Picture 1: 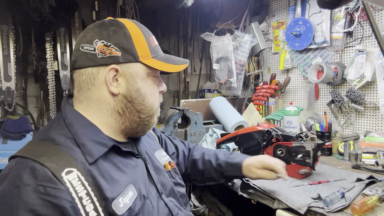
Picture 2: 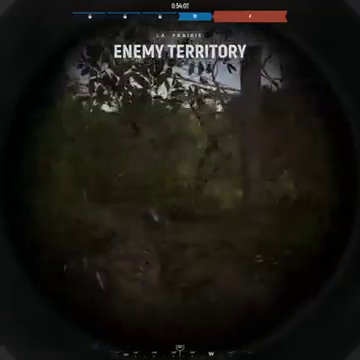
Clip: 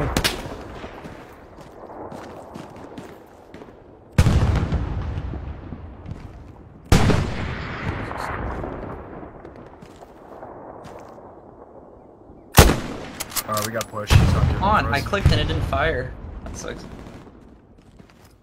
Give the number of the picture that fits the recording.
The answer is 2